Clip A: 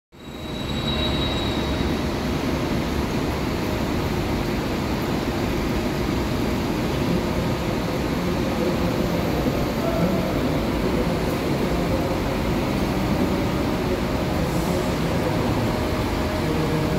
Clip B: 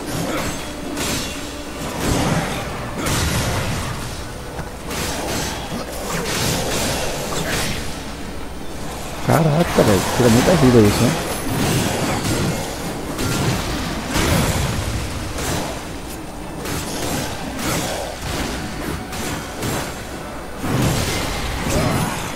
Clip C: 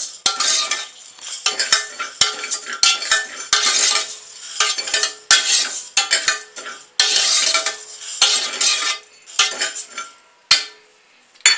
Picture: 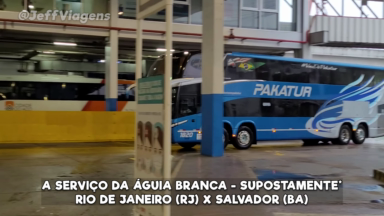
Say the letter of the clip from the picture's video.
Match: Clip A